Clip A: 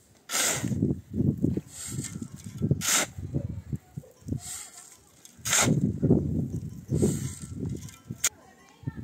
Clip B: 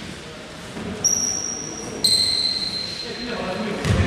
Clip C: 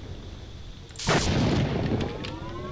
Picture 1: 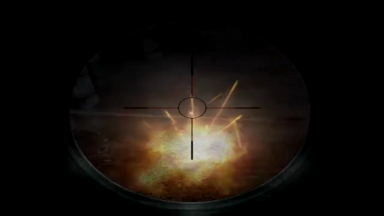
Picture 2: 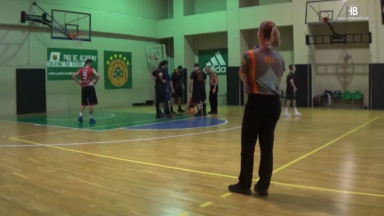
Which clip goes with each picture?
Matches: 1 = C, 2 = B